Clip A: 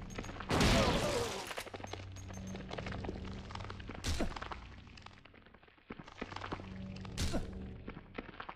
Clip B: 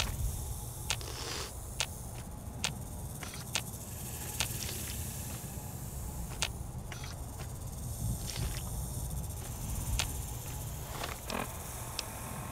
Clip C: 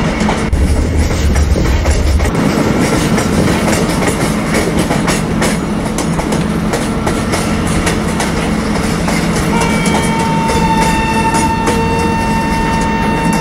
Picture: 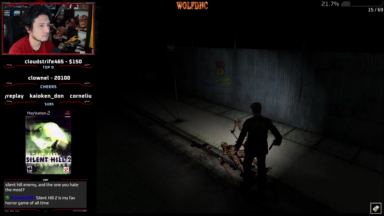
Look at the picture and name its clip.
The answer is A